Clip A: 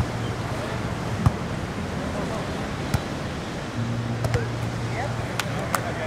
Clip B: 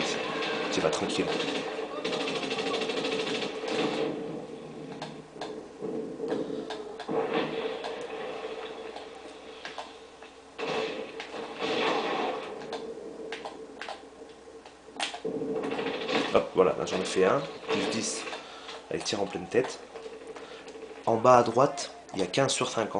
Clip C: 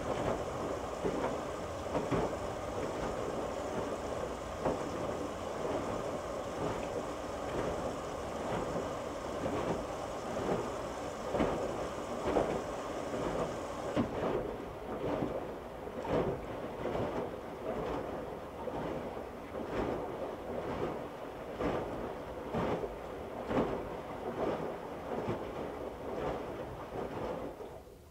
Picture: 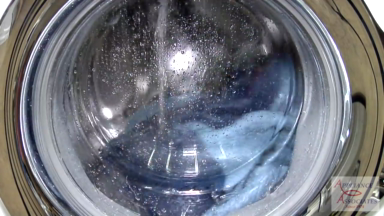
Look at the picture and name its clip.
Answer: C